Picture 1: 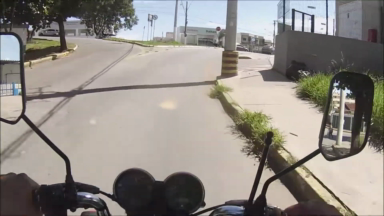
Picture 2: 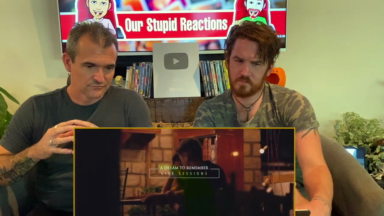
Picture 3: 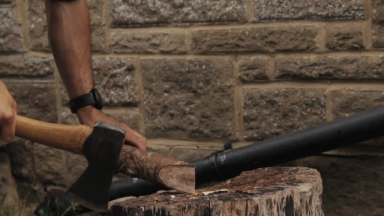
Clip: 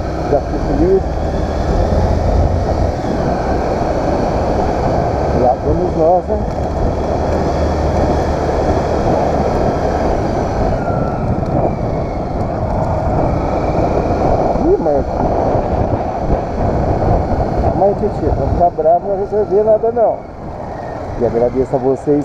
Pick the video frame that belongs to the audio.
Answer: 1